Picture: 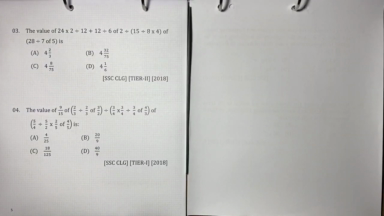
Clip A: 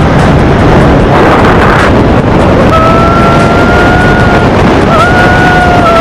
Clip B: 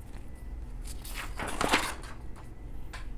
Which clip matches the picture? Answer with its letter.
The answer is B